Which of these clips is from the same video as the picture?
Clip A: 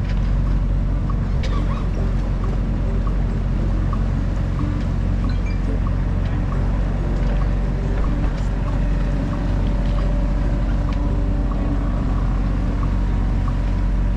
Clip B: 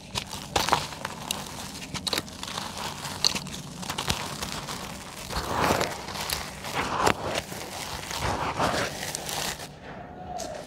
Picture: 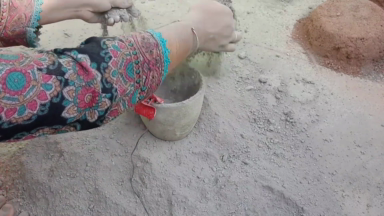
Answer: B